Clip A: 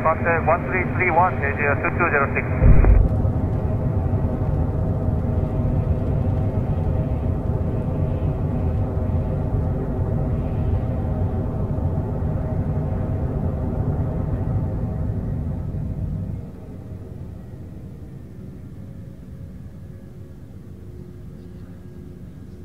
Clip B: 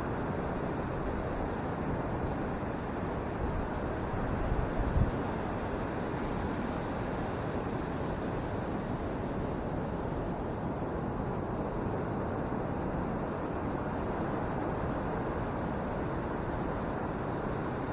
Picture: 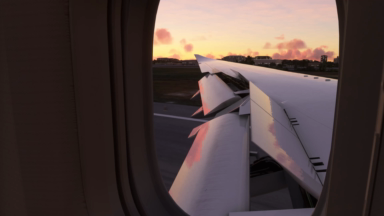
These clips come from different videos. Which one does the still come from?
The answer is A